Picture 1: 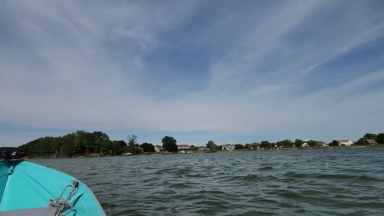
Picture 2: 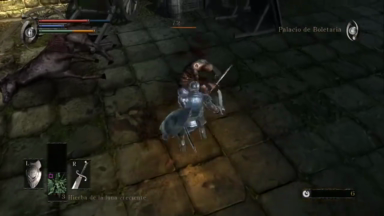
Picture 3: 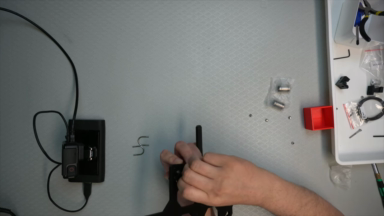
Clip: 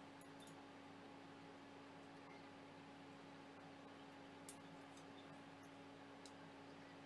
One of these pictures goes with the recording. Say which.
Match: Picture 3